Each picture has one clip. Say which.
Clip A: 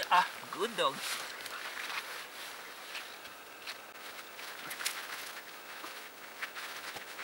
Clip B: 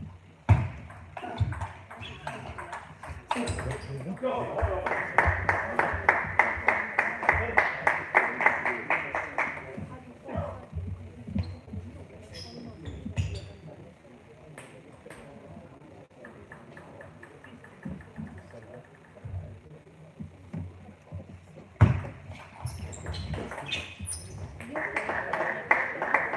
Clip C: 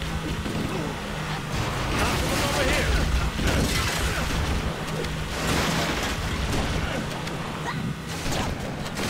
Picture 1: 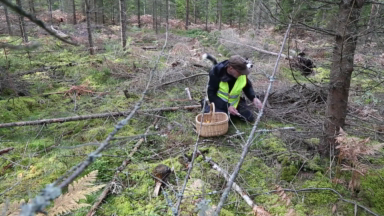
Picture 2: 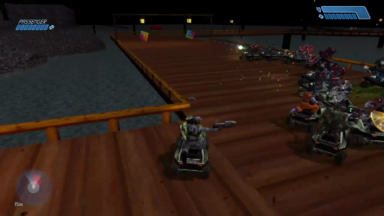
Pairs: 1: A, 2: C